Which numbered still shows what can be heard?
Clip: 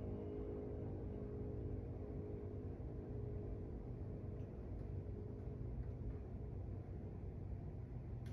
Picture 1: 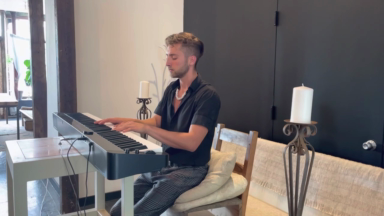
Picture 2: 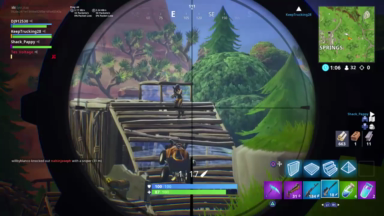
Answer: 1